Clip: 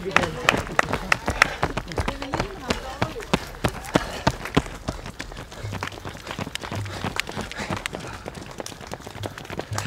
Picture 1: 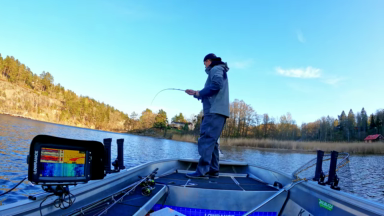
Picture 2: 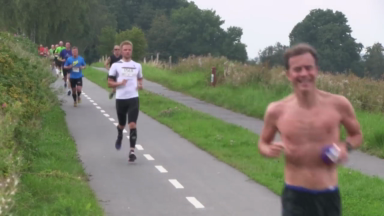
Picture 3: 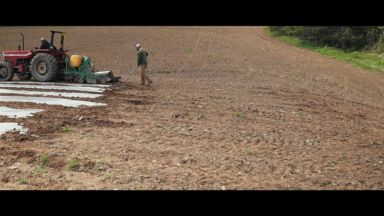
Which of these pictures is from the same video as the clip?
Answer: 2